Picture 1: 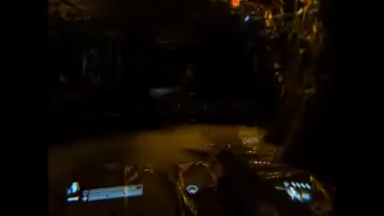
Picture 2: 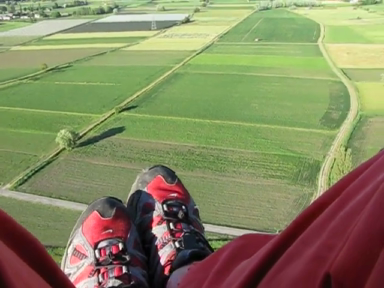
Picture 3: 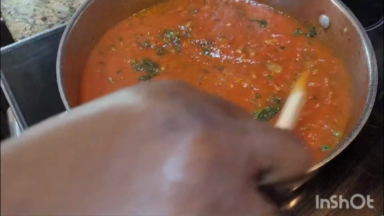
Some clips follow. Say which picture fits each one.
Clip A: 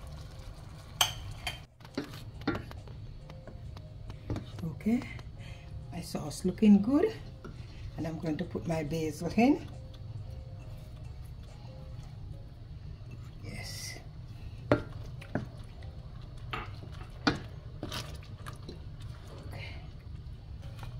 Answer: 3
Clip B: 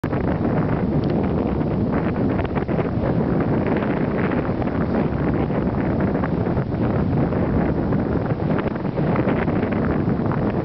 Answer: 2